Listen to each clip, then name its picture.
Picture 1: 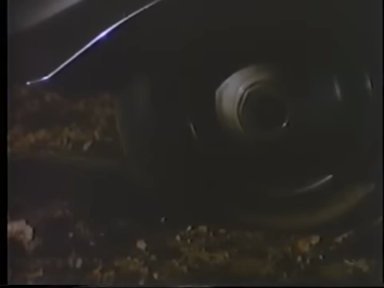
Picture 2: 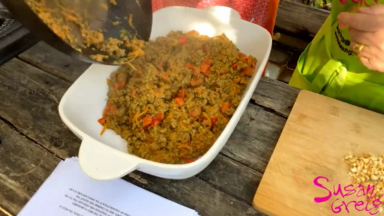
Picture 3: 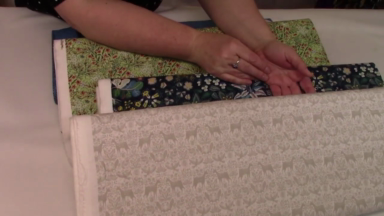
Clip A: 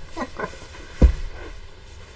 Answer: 3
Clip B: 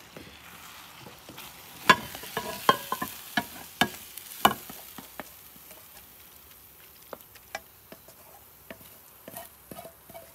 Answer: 2